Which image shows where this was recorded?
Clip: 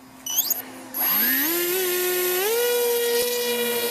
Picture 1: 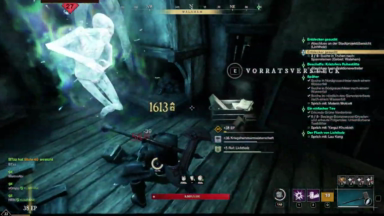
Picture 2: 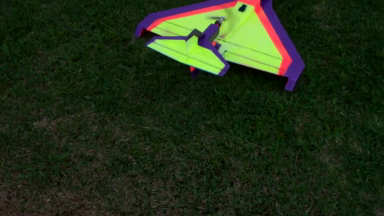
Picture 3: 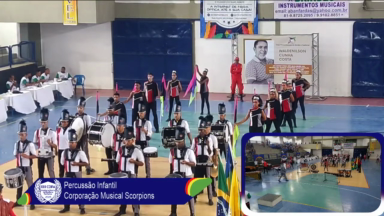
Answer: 2